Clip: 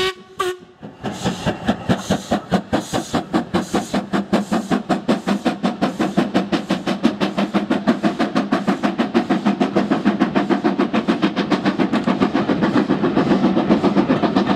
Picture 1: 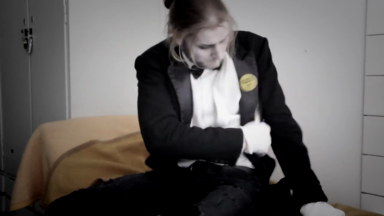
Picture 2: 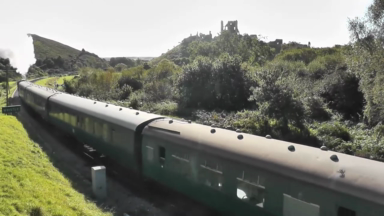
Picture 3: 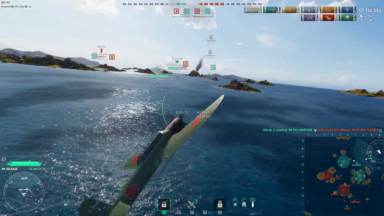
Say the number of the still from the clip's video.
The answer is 2